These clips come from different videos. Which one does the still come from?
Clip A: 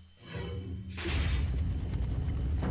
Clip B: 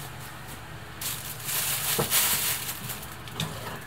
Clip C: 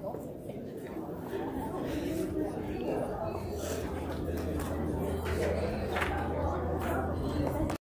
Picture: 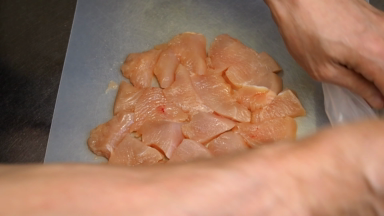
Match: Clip B